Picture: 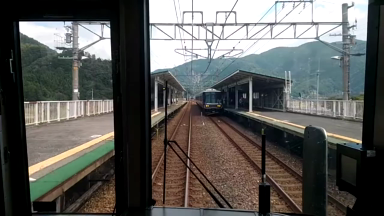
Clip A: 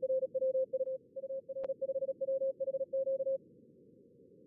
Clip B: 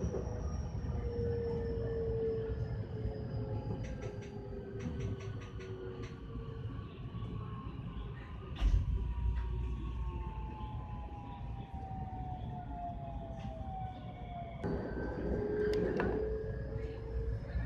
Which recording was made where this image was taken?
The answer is B